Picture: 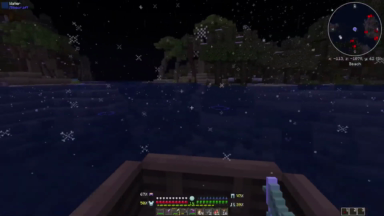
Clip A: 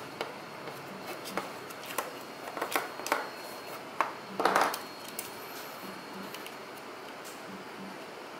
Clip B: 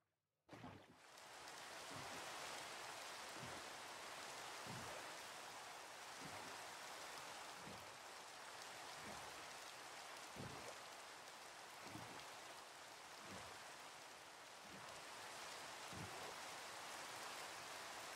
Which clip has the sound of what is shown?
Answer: B